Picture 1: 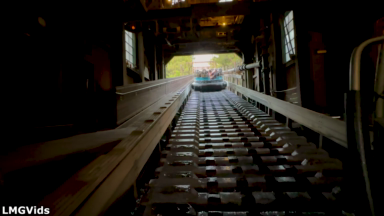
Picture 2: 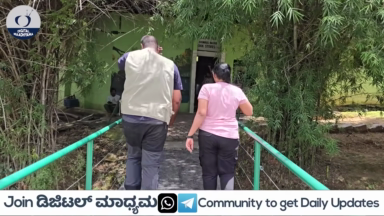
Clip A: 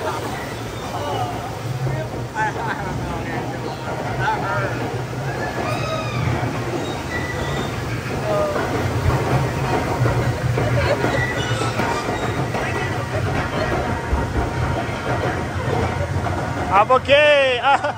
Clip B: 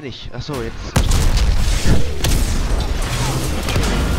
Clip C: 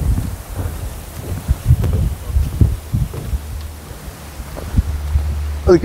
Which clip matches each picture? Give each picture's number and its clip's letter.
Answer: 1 A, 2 C